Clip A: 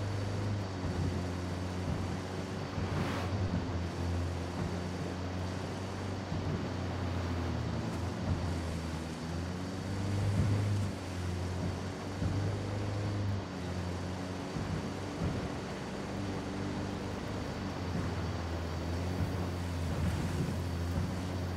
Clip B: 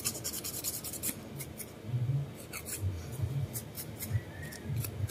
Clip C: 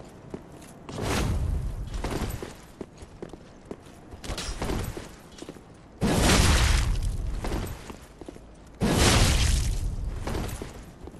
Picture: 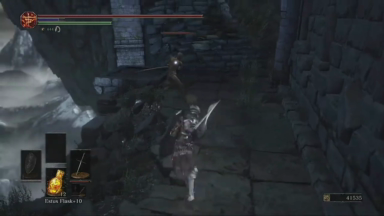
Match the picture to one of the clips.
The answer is C